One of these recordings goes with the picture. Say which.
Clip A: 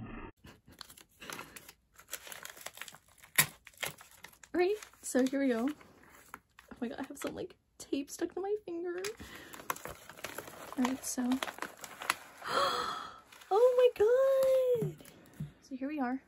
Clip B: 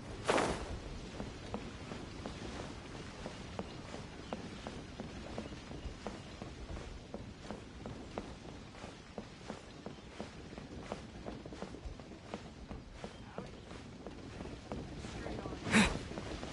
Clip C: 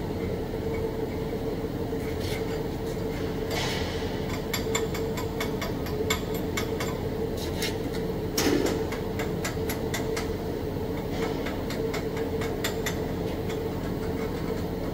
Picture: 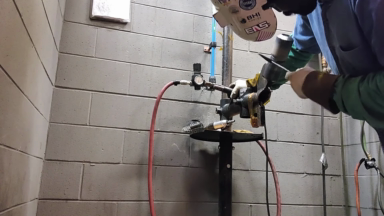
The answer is C